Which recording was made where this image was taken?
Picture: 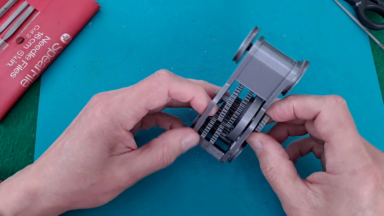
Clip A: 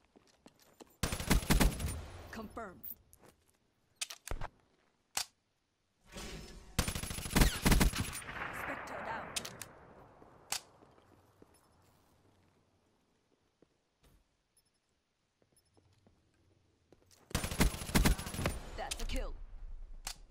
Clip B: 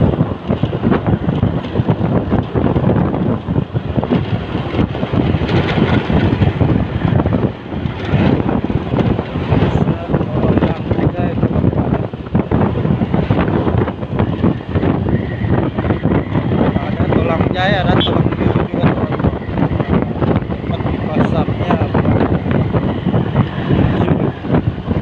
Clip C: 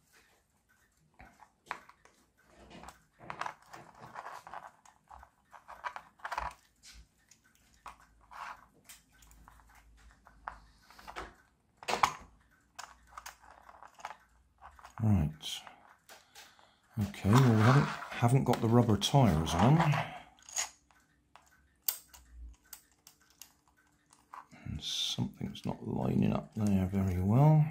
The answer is C